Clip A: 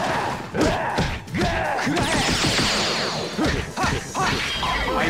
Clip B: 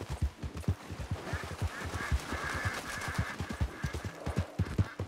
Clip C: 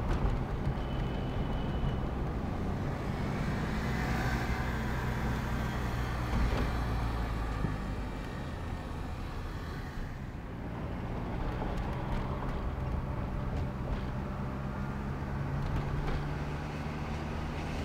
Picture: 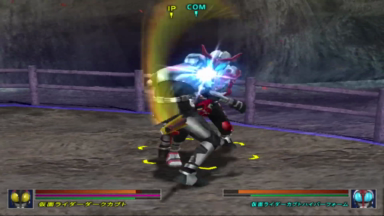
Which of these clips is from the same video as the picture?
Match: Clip A